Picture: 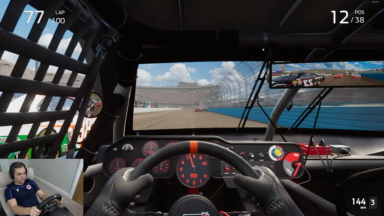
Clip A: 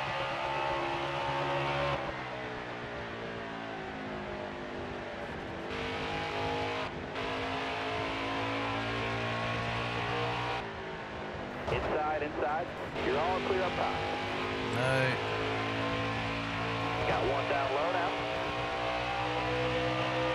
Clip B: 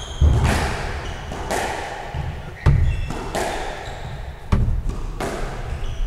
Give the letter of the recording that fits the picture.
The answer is A